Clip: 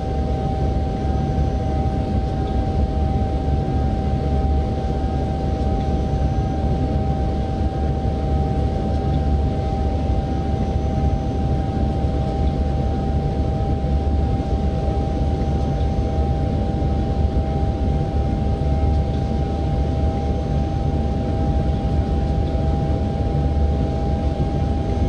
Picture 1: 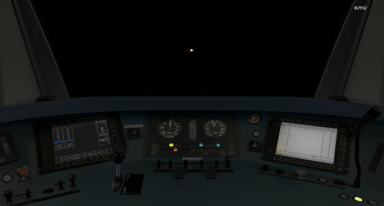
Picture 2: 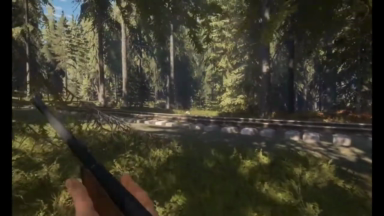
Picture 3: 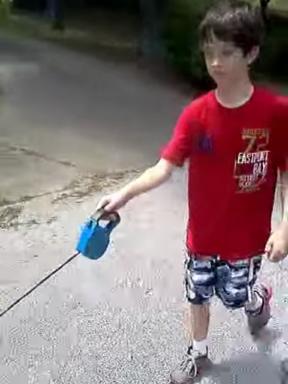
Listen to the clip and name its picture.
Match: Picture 1